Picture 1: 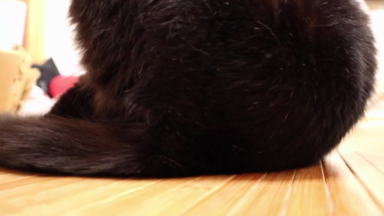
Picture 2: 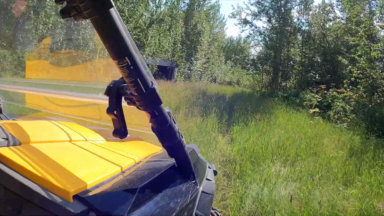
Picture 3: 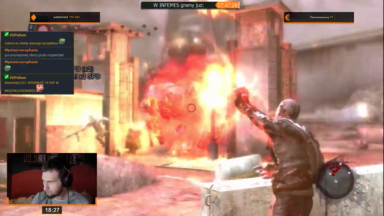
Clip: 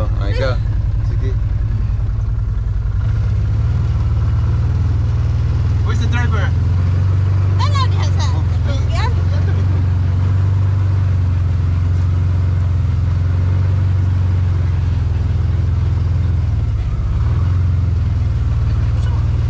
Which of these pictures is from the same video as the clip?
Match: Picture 2